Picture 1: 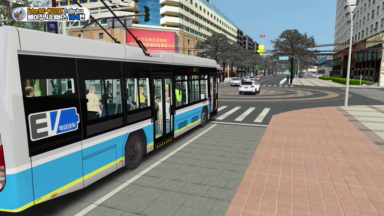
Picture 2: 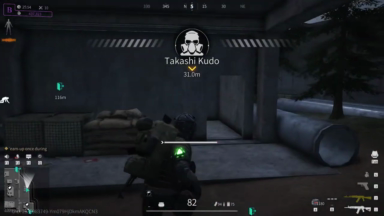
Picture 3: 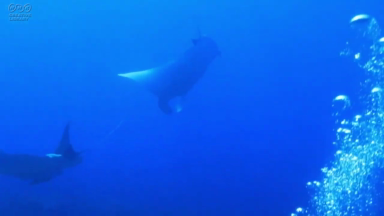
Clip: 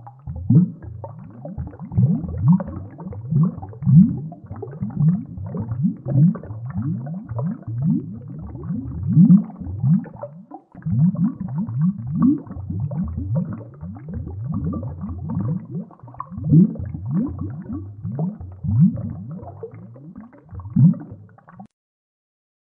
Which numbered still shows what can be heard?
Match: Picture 3